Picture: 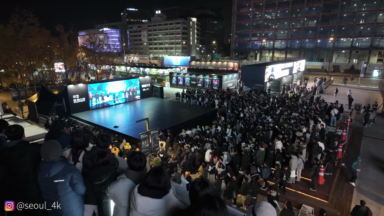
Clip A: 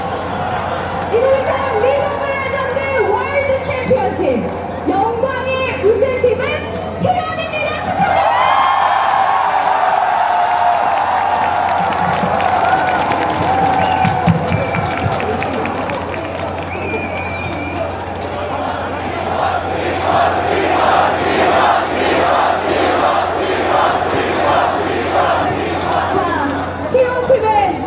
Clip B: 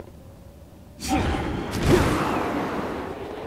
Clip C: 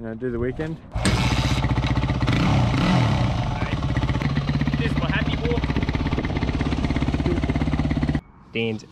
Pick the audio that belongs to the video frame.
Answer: A